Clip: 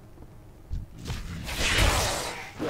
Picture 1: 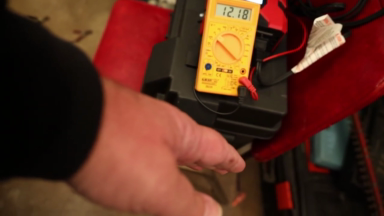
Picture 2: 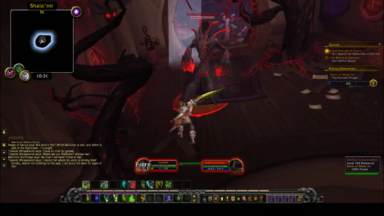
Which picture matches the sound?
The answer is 2